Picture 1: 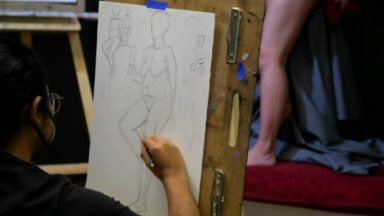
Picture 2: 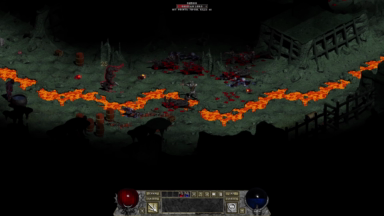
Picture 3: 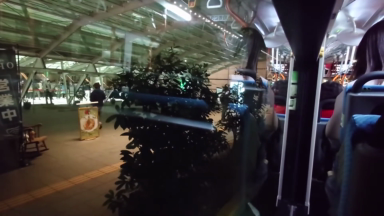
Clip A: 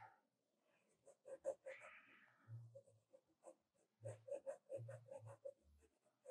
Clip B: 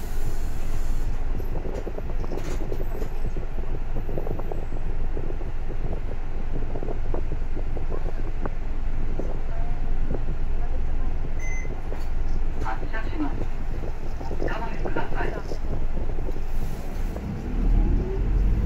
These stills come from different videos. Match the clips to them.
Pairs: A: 1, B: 3